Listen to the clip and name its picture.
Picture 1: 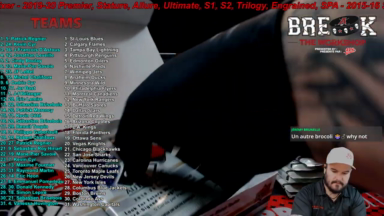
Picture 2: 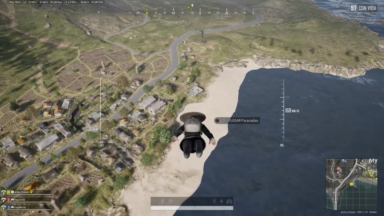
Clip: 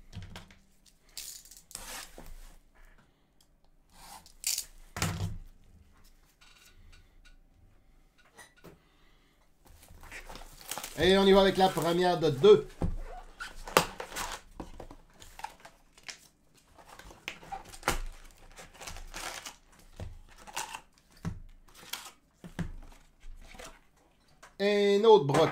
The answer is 1